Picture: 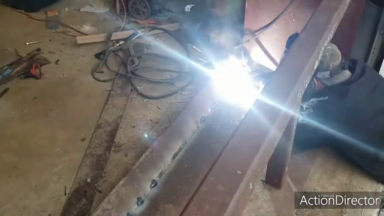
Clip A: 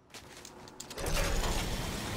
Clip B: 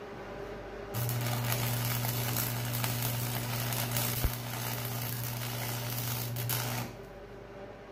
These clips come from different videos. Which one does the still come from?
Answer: B